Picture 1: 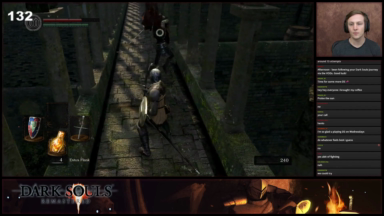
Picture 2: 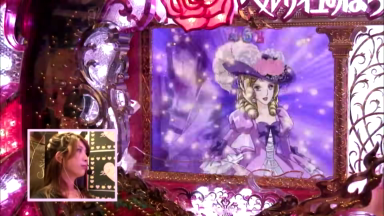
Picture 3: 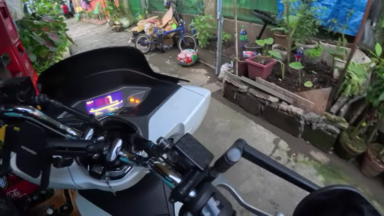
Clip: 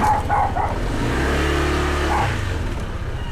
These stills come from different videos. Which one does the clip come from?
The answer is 3